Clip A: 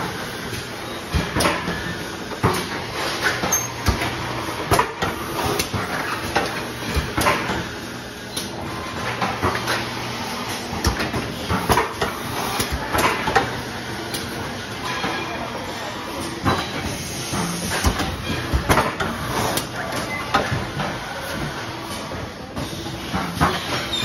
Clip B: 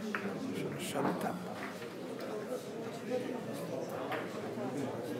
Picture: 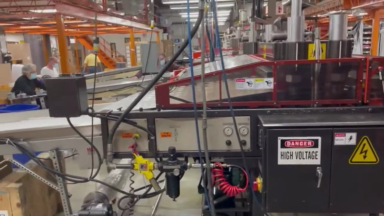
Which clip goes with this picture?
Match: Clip A